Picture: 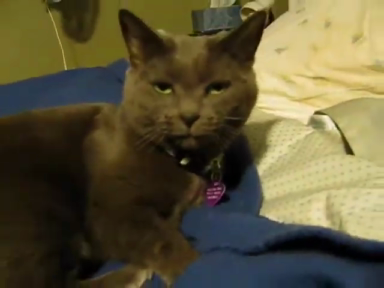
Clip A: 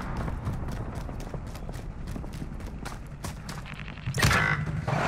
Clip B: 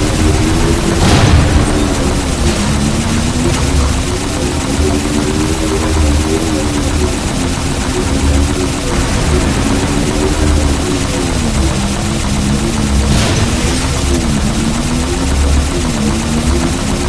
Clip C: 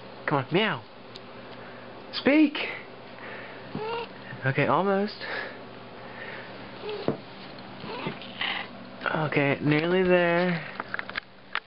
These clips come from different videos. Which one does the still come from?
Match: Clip C